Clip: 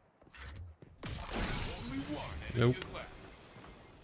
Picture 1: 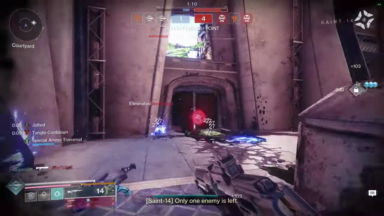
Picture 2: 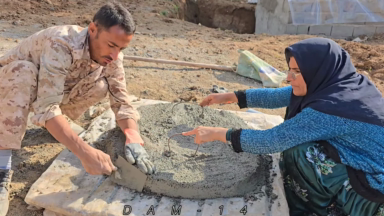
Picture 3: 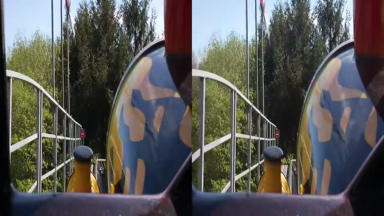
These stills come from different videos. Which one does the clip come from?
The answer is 1